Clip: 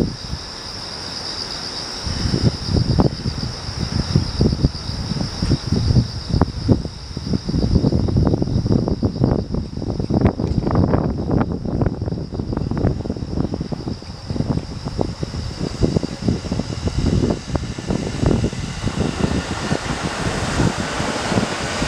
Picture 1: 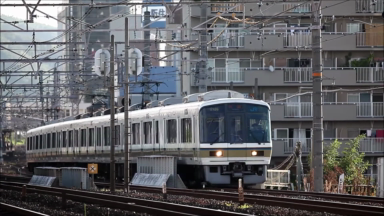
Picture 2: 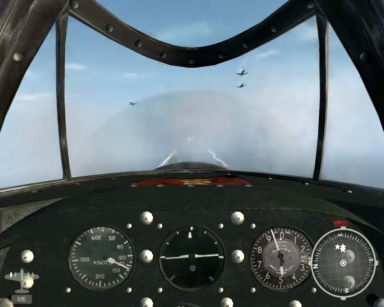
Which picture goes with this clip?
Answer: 1